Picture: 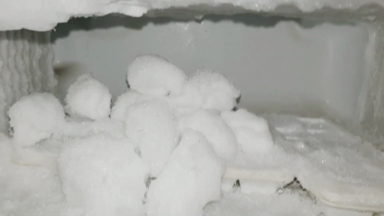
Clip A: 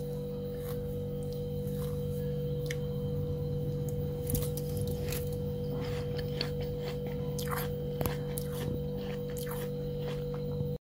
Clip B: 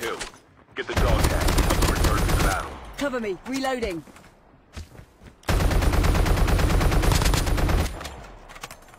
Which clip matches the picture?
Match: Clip A